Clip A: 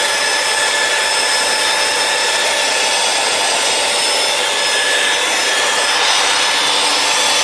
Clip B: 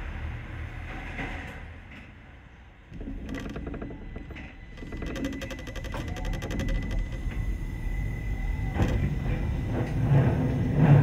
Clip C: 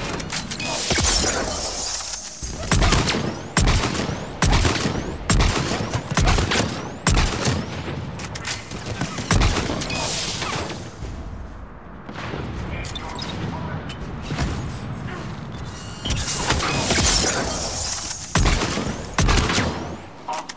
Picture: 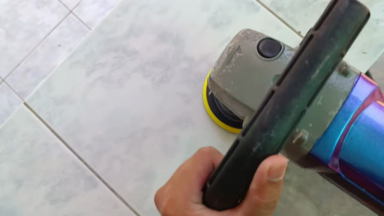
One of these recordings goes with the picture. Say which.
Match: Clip A